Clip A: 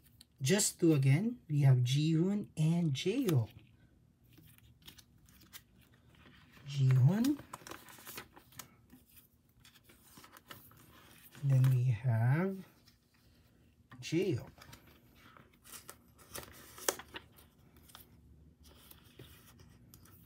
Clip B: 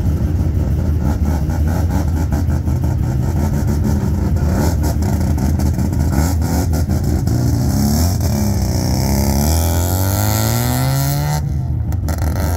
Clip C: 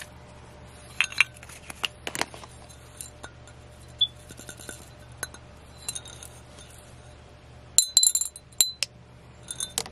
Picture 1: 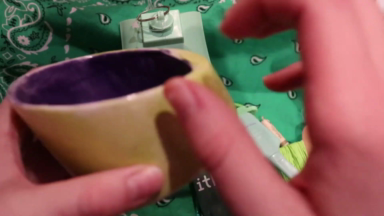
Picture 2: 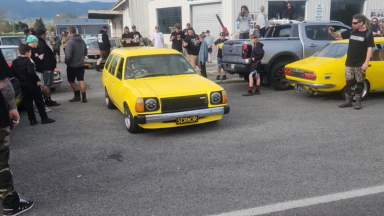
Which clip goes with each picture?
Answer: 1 C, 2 B